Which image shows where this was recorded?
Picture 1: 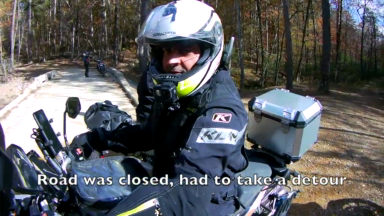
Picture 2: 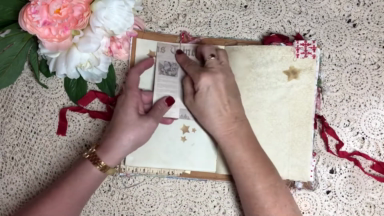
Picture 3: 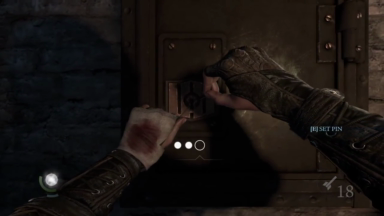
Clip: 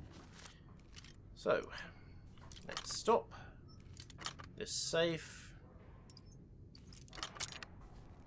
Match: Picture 3